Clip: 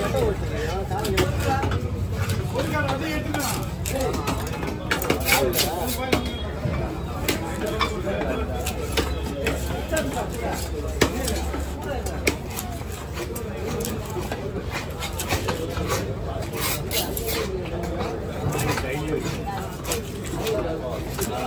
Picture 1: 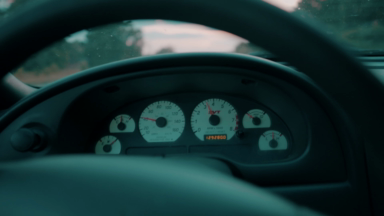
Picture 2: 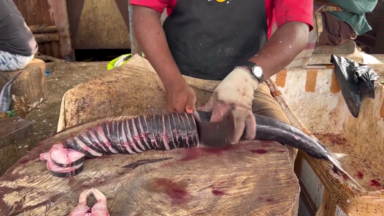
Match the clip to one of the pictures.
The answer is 2